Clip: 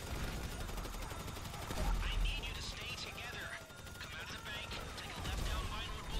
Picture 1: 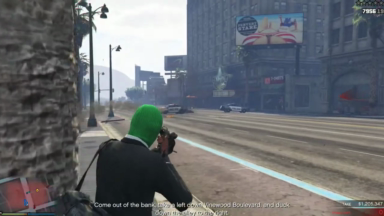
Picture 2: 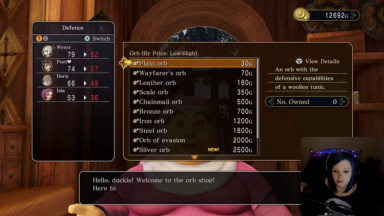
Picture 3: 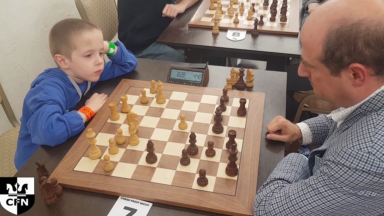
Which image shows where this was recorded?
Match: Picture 1